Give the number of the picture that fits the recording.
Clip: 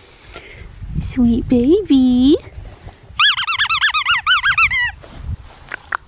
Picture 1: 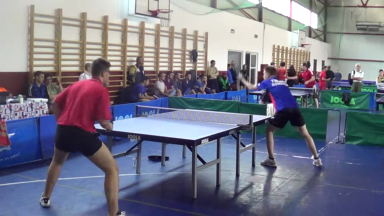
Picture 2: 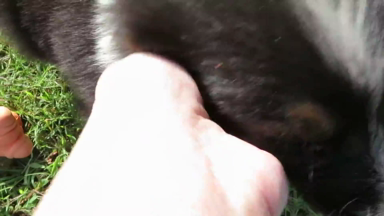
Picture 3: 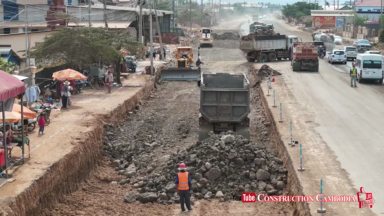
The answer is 2